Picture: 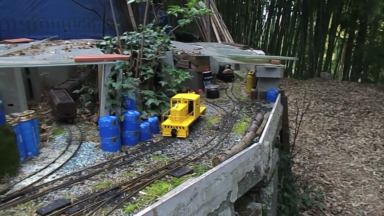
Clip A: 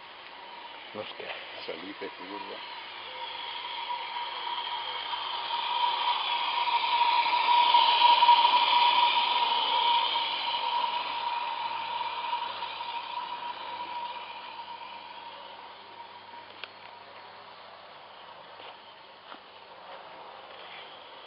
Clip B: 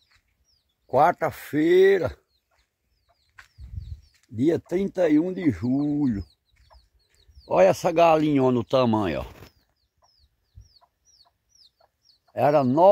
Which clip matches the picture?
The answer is A